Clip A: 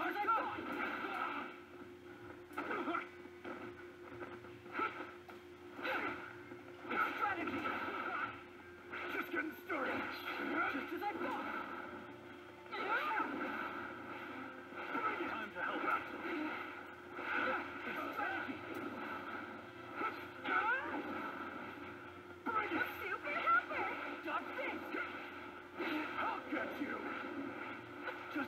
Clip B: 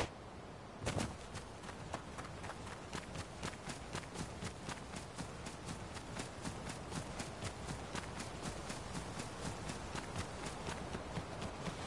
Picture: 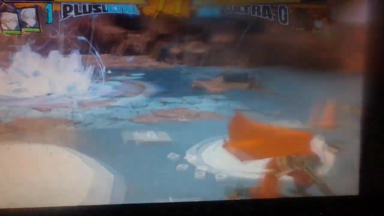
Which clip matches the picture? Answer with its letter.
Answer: A